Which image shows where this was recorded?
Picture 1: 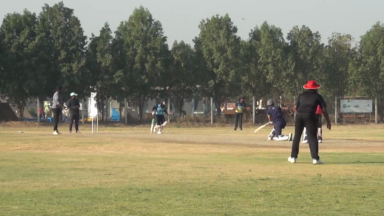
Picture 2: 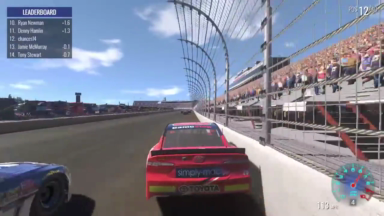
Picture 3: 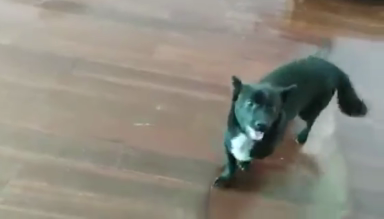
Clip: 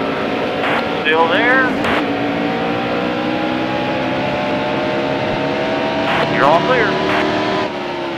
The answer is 2